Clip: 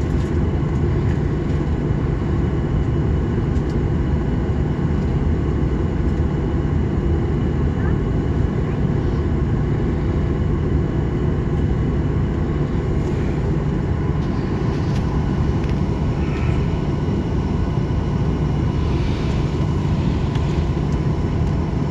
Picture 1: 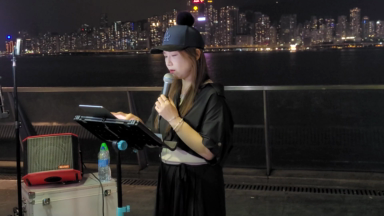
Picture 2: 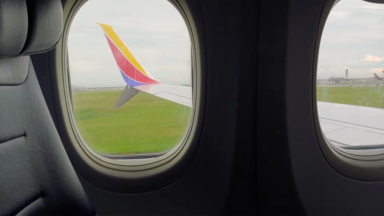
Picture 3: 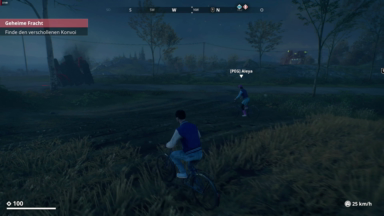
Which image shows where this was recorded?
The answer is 2